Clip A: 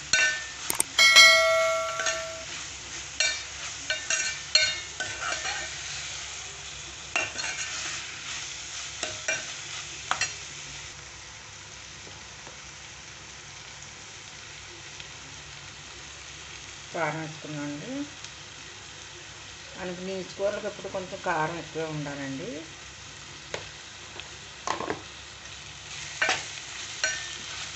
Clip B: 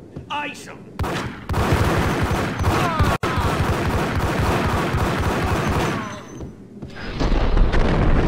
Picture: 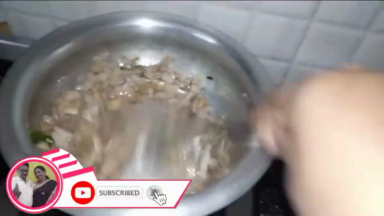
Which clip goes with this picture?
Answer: A